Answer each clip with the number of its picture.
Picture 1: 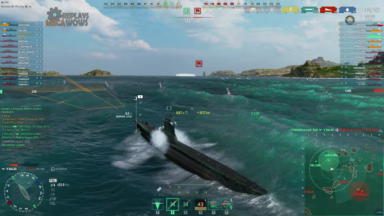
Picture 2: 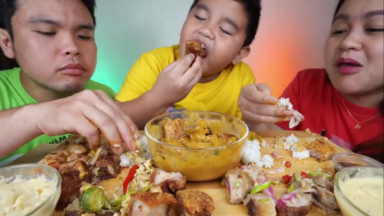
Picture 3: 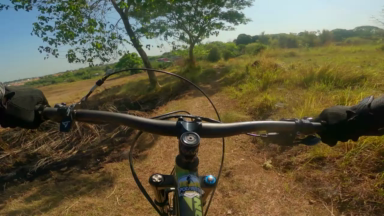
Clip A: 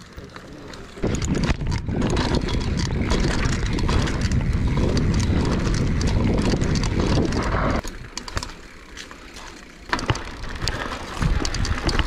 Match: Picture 3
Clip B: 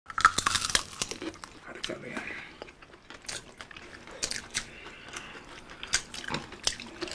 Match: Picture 2